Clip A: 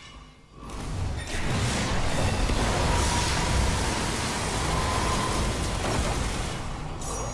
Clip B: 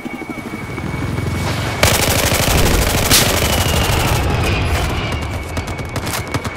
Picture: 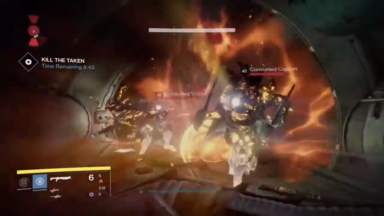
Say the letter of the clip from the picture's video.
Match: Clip A